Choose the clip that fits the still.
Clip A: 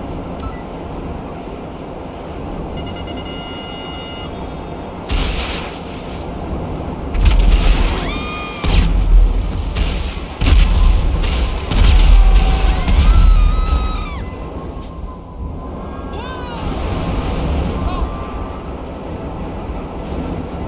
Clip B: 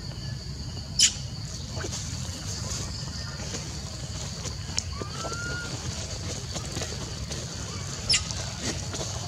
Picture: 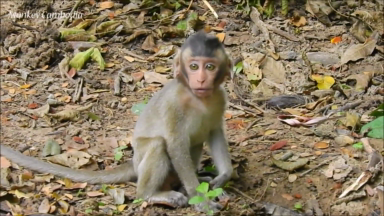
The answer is B